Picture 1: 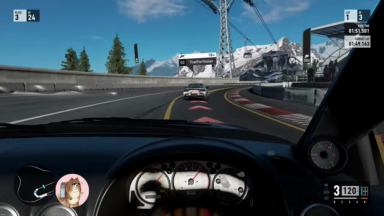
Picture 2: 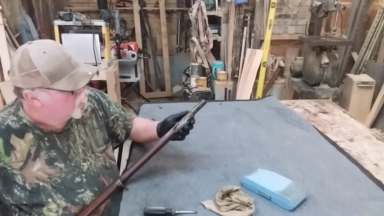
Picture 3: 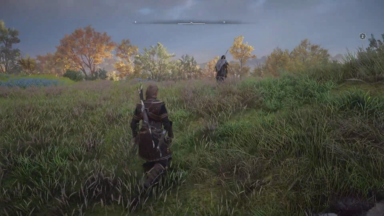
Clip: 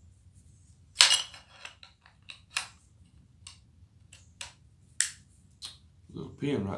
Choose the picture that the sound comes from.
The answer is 2